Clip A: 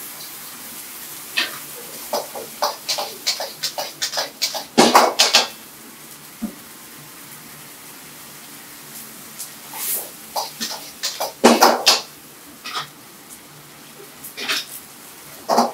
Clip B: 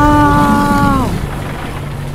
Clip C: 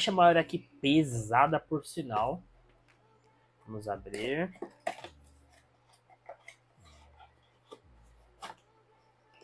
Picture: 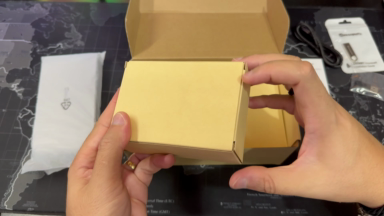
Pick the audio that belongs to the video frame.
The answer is C